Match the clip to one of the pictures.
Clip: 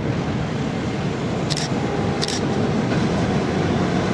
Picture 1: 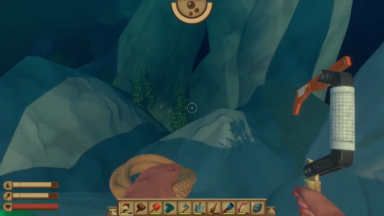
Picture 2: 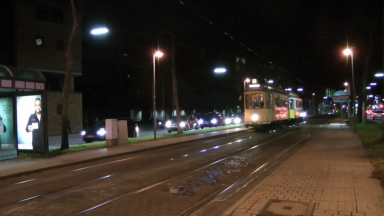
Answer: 2